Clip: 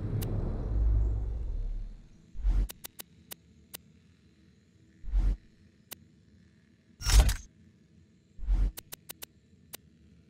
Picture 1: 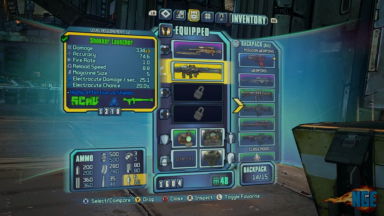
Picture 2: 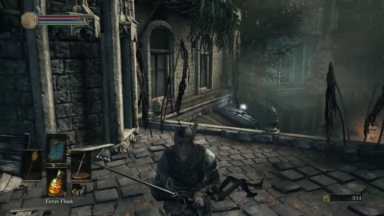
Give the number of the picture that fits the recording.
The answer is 1